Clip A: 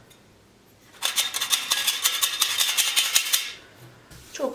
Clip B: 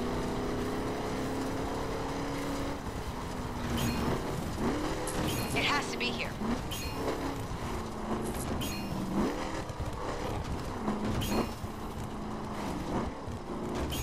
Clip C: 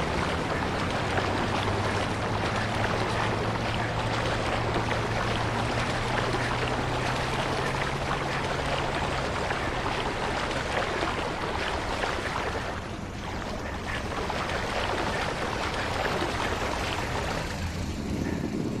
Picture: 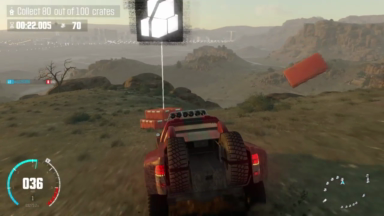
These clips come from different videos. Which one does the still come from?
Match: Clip B